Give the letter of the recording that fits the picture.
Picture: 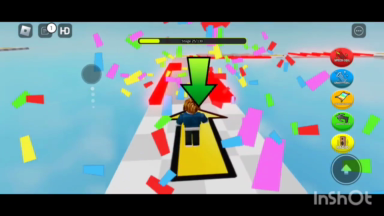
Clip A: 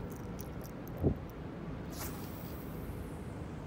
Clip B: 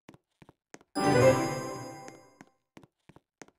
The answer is B